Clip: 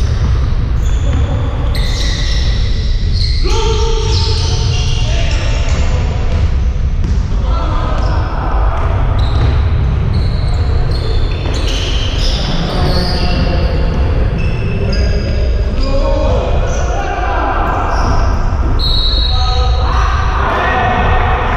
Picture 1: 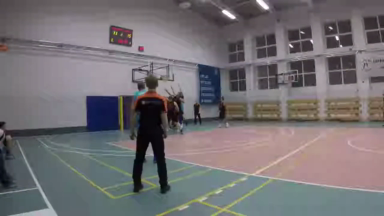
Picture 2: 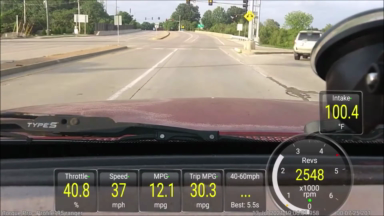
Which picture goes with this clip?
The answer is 1